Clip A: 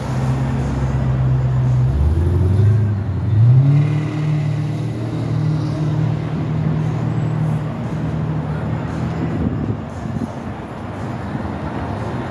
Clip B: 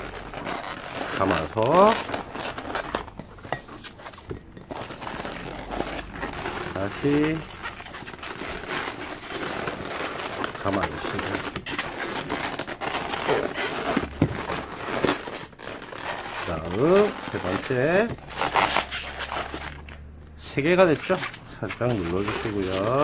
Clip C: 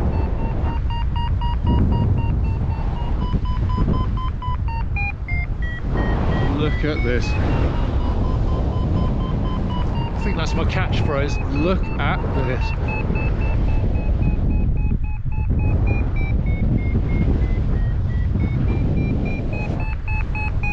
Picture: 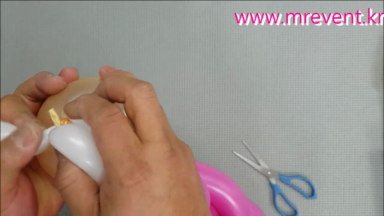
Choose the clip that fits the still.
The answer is B